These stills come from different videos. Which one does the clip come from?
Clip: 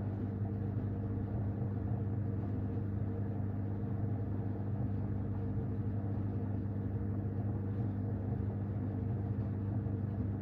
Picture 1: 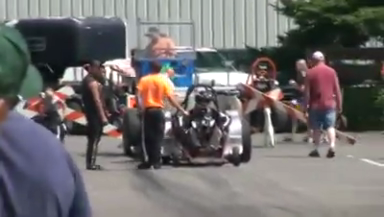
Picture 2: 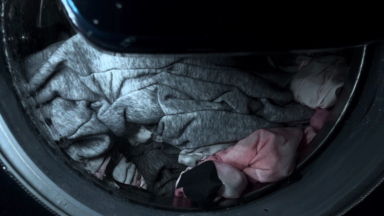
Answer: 2